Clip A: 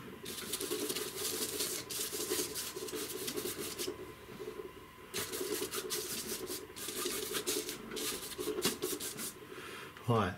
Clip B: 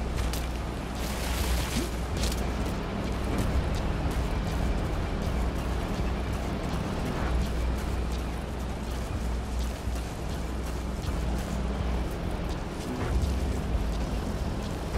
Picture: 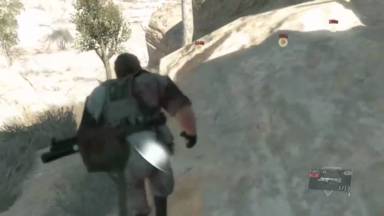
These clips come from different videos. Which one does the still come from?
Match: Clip B